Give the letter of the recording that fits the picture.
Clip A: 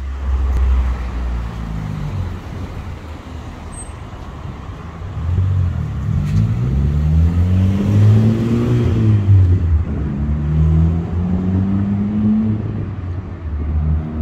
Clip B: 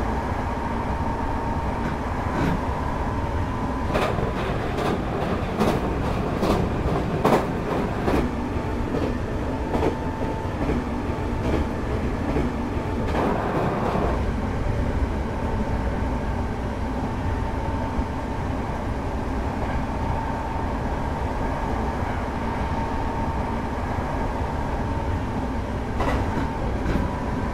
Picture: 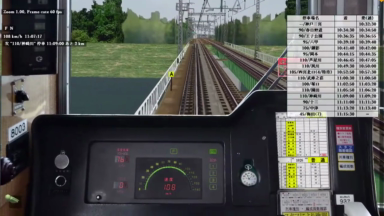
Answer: B